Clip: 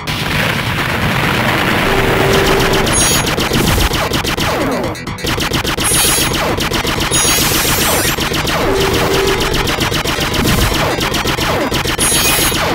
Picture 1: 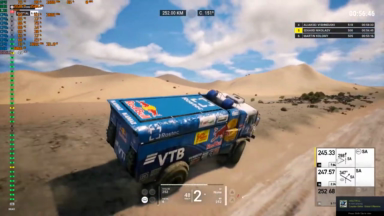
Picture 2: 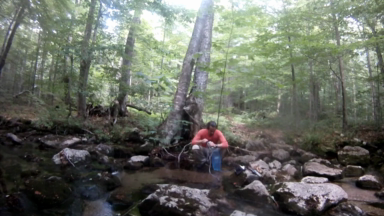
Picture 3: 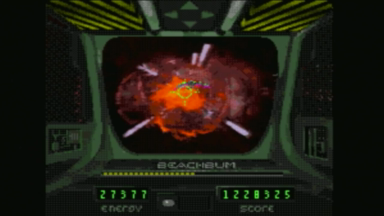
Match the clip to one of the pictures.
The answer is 3